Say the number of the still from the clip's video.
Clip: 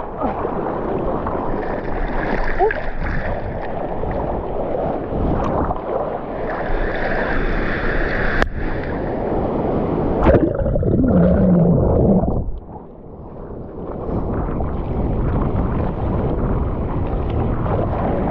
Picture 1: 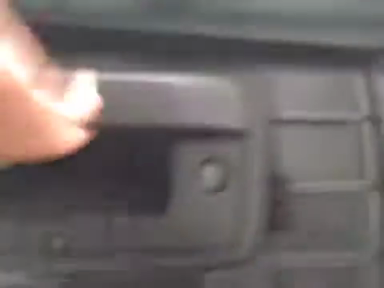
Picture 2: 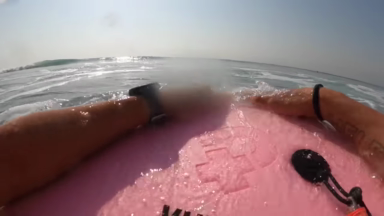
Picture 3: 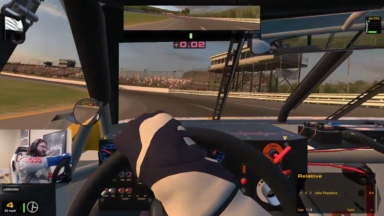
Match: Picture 2